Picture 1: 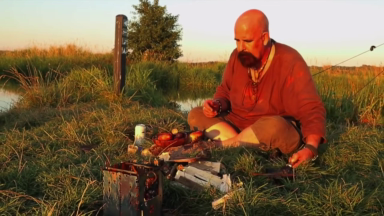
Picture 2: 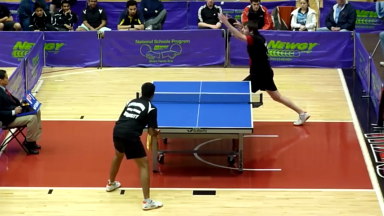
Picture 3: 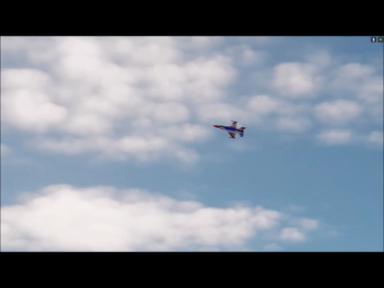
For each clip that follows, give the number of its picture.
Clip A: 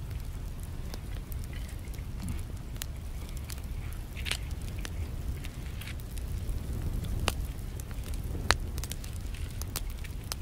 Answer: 1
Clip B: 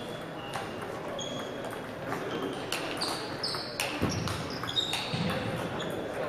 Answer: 2